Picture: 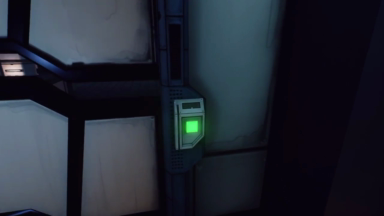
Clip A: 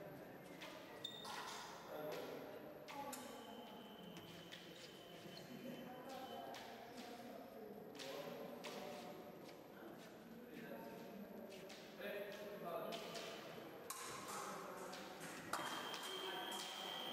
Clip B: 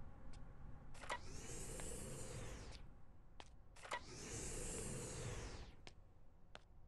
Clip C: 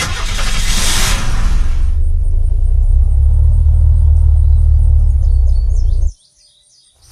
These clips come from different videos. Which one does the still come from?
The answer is B